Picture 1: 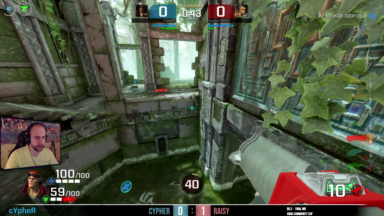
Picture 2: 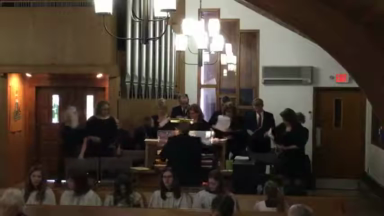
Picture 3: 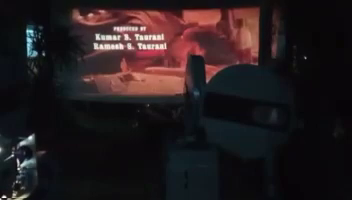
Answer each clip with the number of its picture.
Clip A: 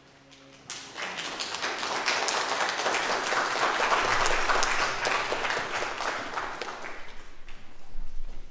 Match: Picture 2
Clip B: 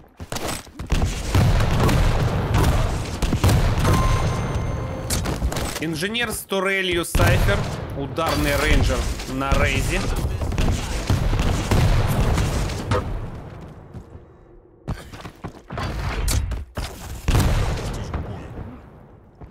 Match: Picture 1